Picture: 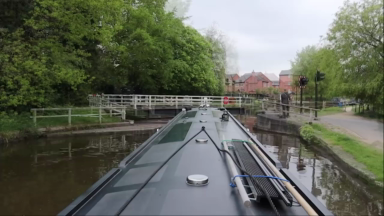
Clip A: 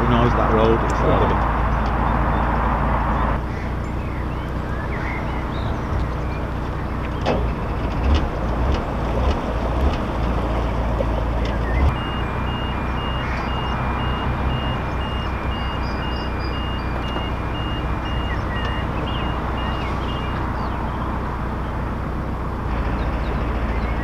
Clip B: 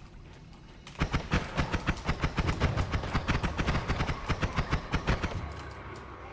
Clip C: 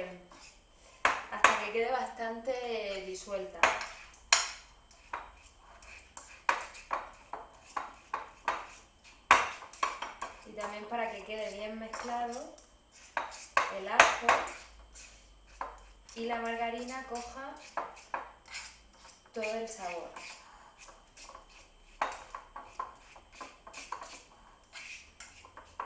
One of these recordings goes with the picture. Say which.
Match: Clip A